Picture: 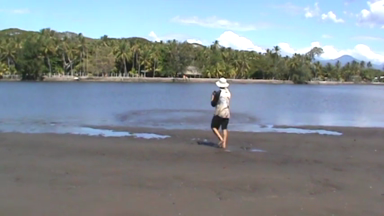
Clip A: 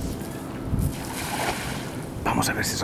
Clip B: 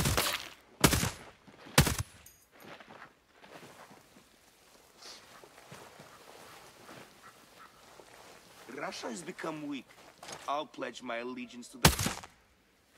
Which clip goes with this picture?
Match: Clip A